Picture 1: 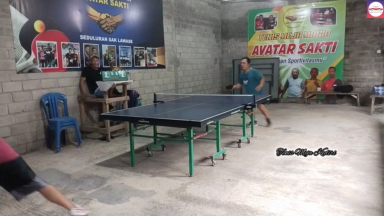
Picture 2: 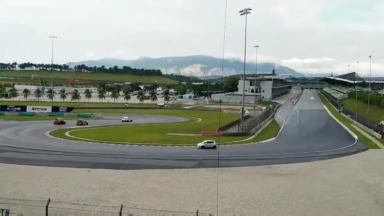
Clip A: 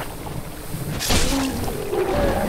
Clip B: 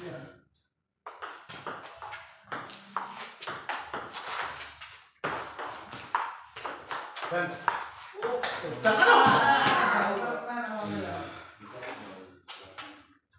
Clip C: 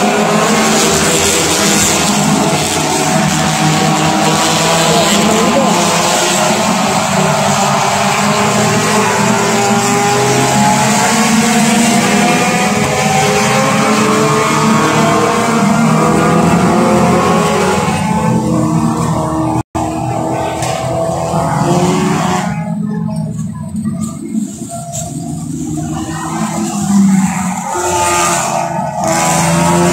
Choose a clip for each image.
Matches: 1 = B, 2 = C